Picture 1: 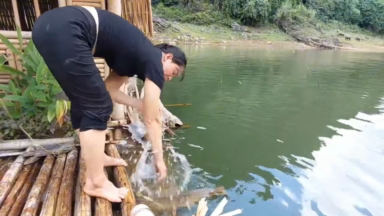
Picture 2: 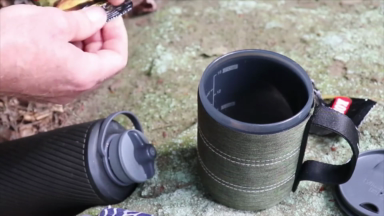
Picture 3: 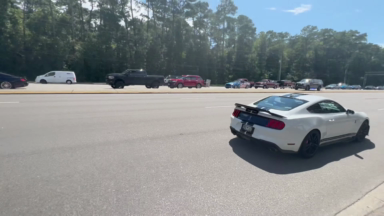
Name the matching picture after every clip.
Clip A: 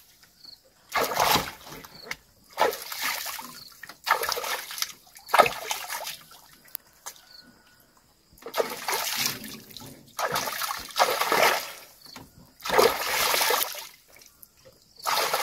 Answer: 1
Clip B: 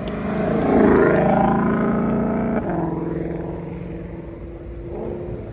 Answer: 3